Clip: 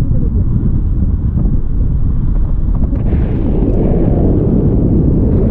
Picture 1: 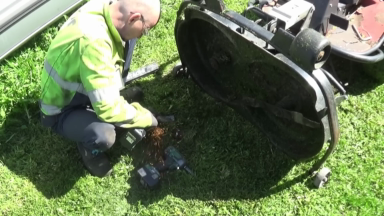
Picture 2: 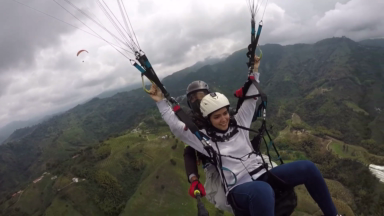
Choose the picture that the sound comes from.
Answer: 2